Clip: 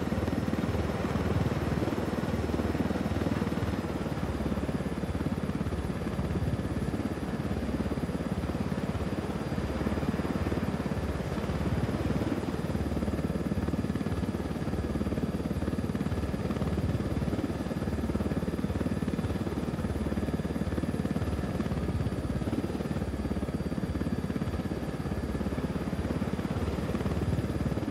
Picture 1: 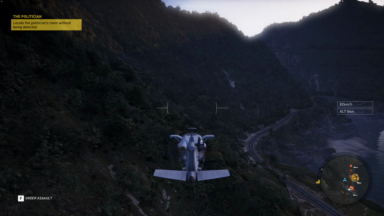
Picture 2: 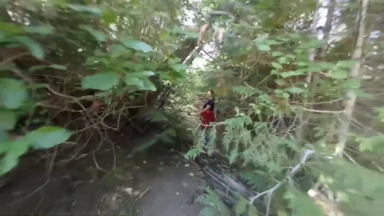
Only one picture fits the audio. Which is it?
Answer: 1